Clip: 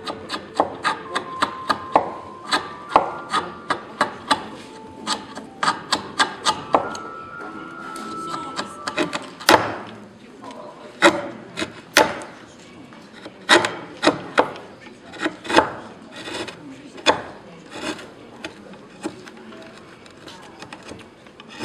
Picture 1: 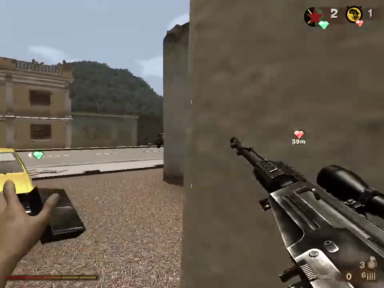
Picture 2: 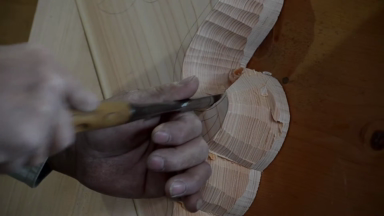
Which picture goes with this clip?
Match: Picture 2